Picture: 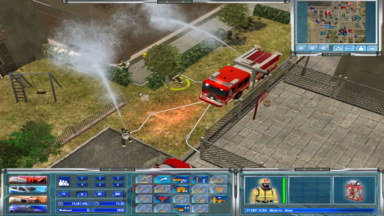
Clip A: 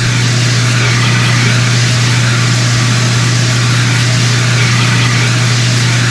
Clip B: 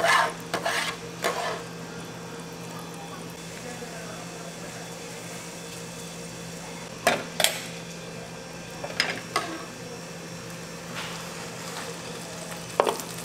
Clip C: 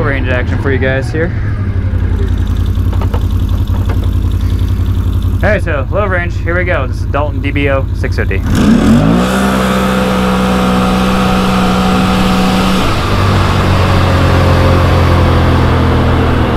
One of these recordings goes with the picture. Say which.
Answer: A